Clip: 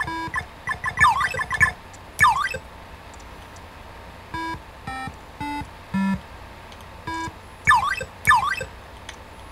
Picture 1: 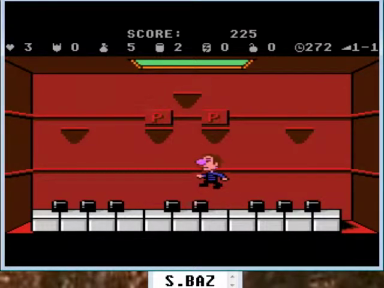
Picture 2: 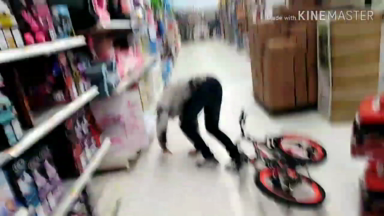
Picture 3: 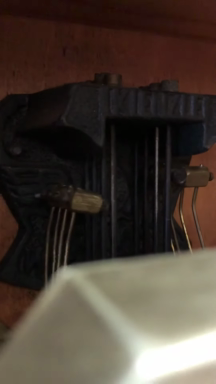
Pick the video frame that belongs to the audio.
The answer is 1